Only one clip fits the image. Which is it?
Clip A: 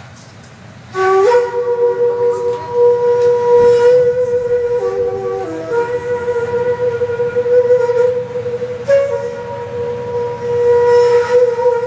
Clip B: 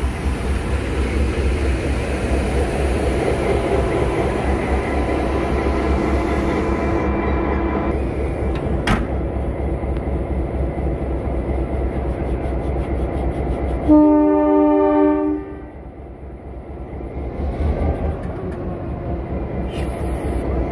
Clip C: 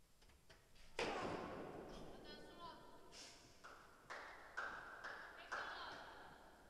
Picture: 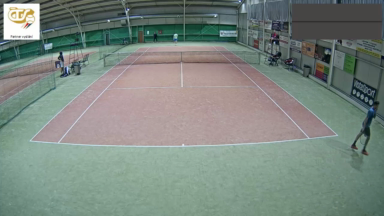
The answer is C